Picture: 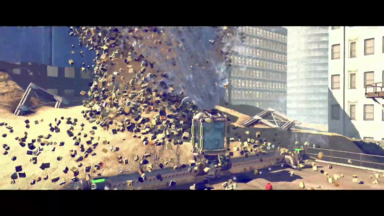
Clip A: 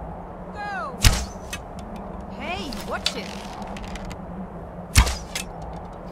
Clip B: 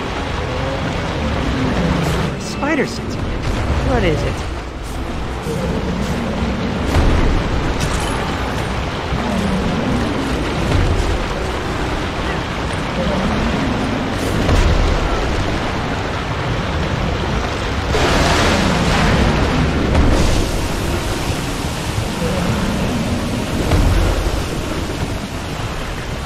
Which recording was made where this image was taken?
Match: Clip B